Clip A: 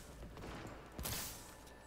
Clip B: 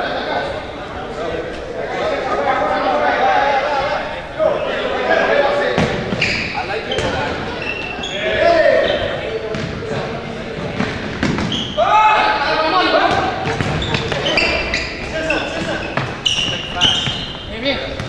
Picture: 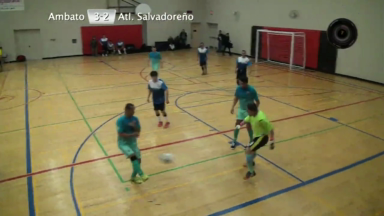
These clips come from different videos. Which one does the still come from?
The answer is B